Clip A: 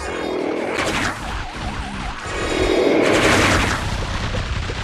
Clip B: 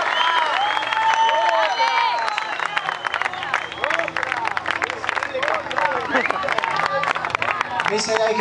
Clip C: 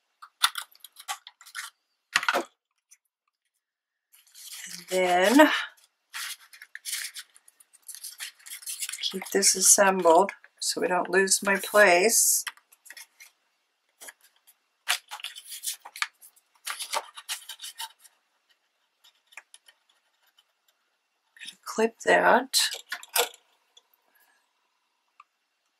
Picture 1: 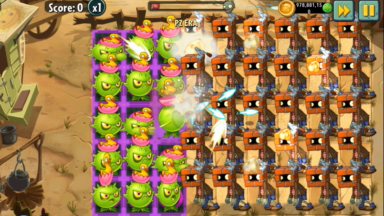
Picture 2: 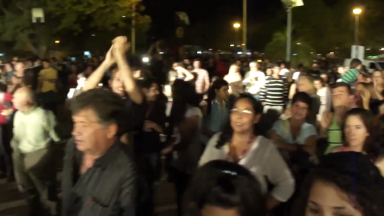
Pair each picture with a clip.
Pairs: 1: A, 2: B